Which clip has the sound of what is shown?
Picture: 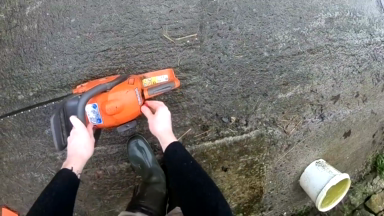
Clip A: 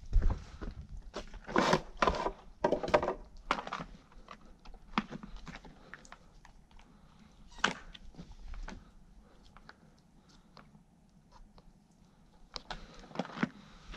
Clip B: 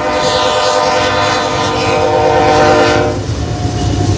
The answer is A